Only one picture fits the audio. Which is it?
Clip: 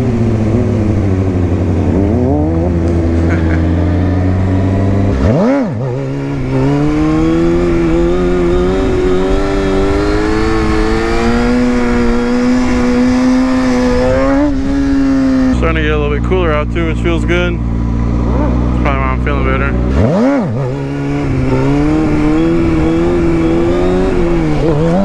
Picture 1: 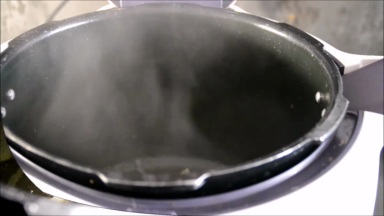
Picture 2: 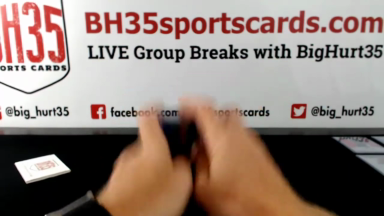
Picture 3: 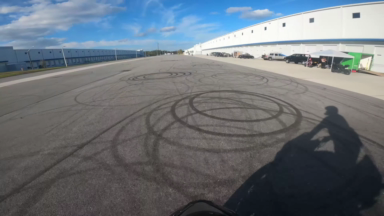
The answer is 3